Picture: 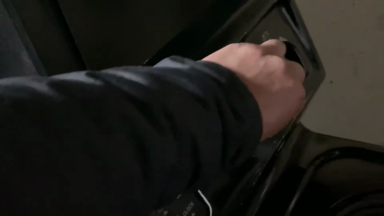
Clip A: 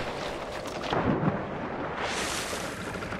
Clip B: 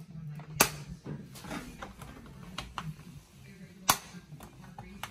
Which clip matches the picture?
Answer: B